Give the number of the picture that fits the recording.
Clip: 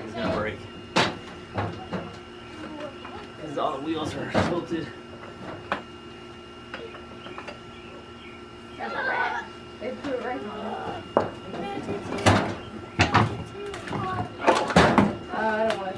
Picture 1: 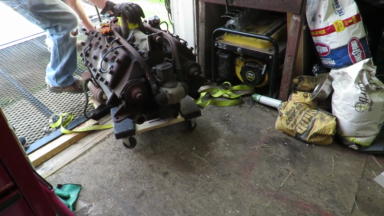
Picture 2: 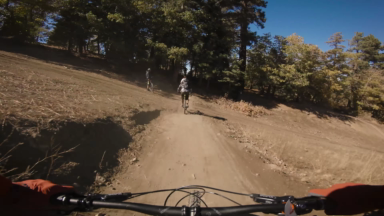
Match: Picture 1